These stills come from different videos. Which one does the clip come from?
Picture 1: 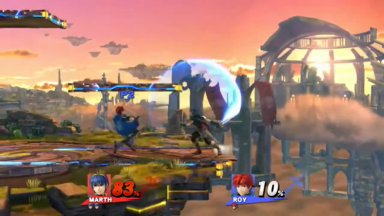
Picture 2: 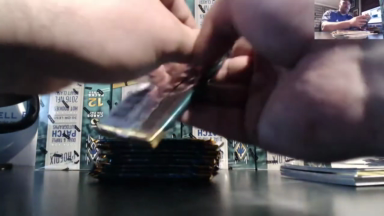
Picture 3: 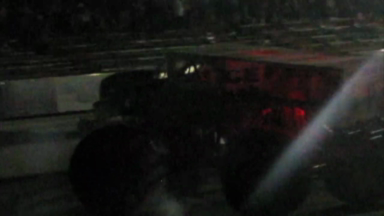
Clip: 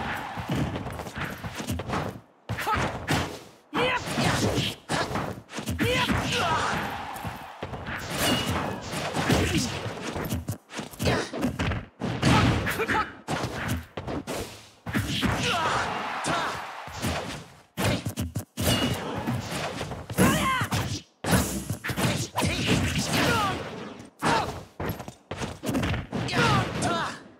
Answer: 1